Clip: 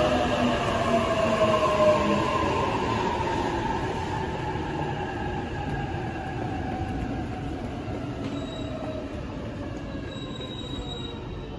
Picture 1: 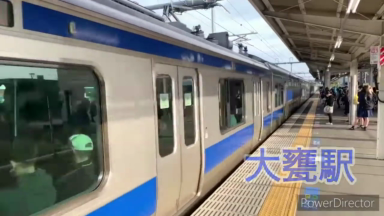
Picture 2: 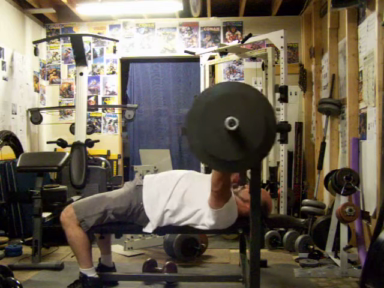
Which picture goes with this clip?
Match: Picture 1